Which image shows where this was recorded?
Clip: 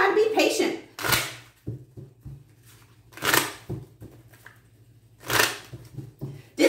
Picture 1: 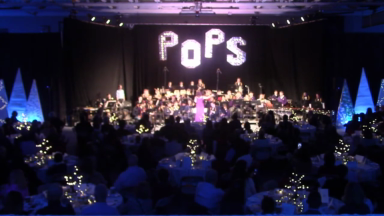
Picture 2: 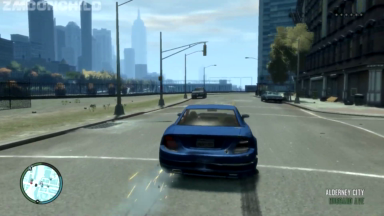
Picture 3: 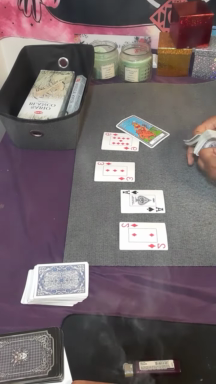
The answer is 3